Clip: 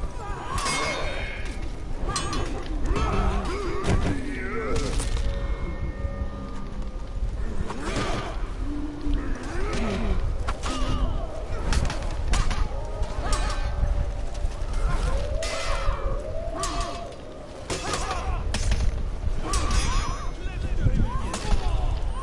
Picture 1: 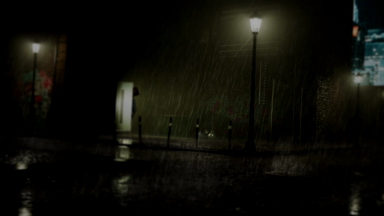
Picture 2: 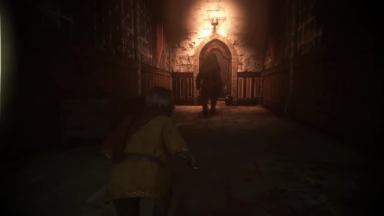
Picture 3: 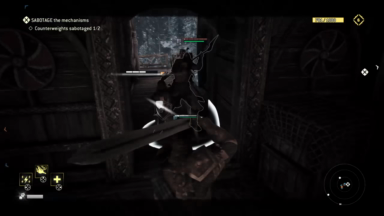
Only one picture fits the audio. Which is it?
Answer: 3